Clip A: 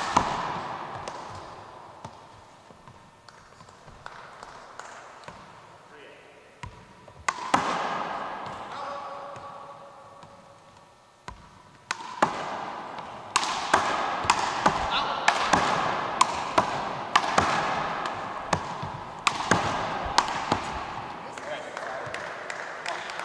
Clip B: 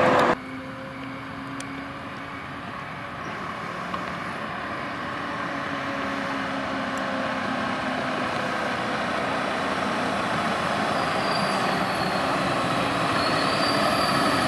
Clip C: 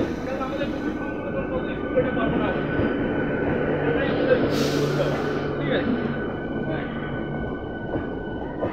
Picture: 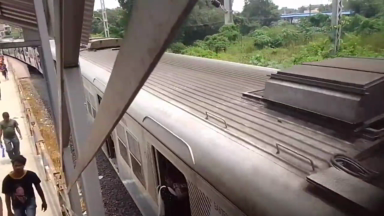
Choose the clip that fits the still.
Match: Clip C